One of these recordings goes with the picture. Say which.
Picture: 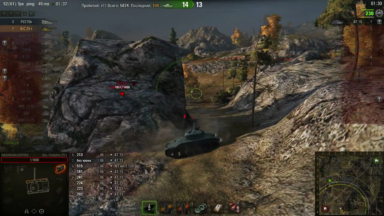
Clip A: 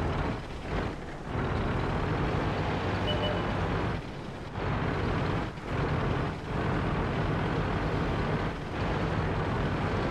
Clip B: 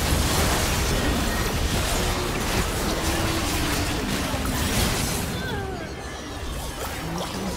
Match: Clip A